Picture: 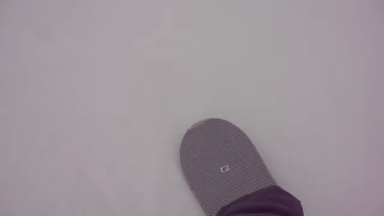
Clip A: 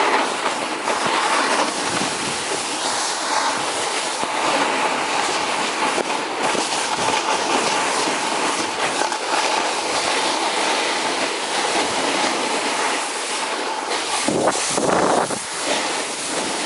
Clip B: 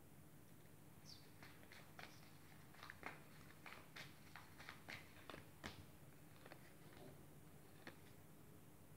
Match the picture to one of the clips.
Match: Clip A